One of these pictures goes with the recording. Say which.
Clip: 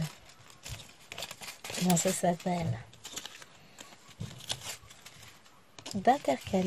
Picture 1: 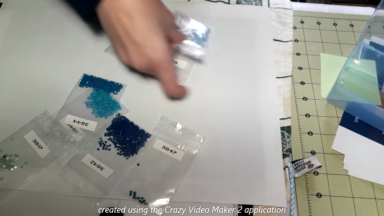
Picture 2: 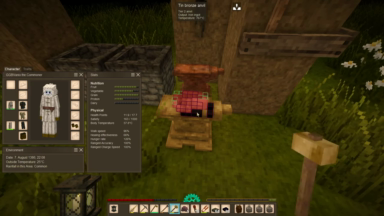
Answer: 1